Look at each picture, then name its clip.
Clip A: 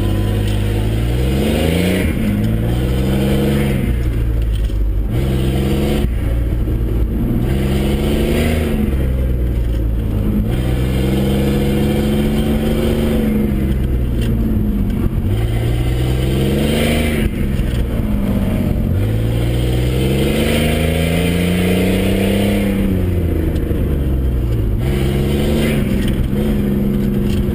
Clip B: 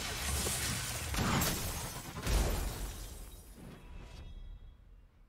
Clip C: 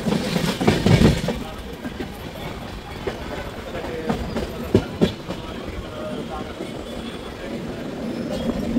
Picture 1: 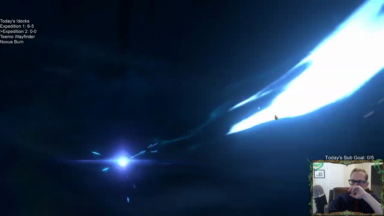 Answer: B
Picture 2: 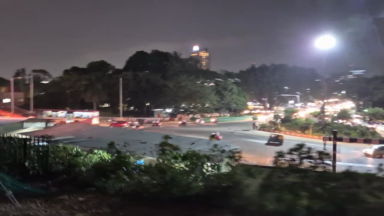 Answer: C